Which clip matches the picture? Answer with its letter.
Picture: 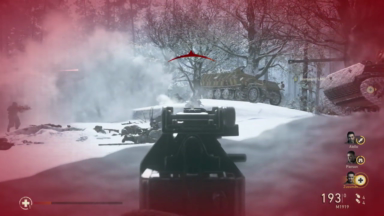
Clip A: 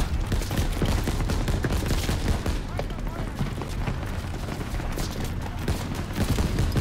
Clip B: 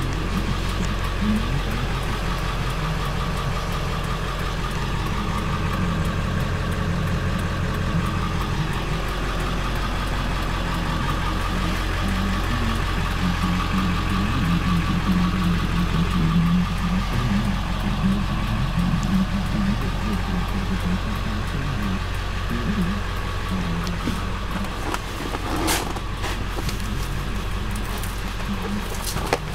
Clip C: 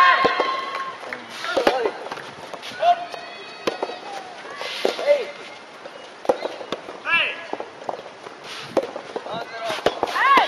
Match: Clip A